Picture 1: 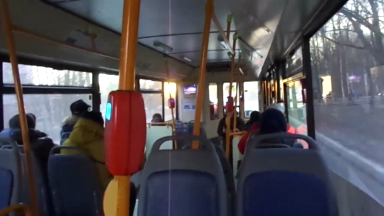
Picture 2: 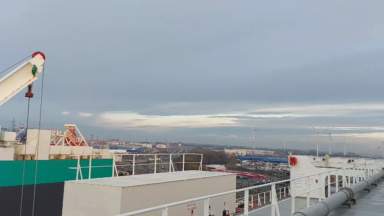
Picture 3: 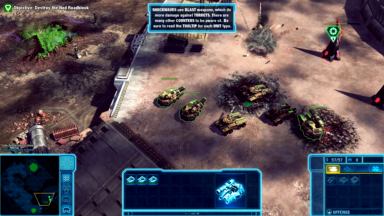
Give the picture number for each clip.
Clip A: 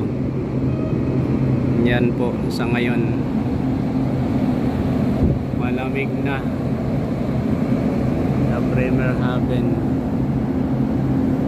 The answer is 2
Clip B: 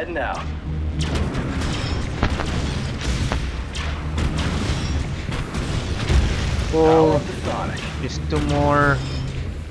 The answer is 3